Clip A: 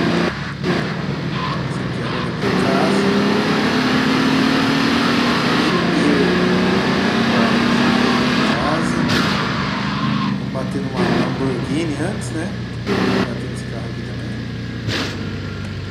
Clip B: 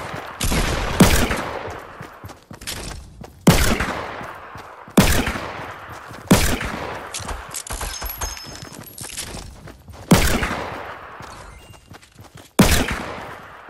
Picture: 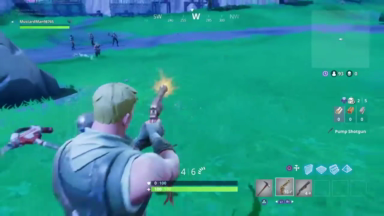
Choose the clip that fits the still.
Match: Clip B